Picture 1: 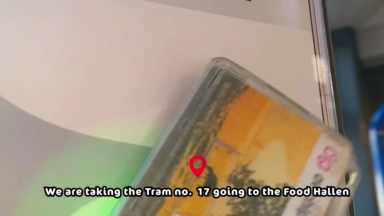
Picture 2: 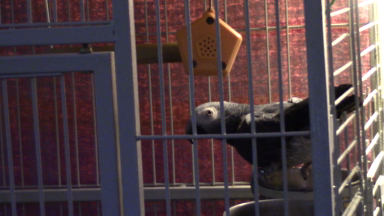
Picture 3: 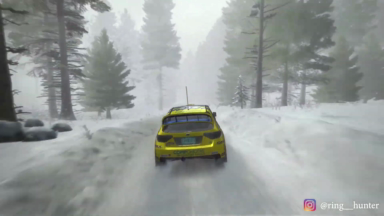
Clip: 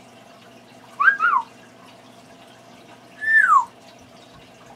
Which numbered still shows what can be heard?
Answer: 2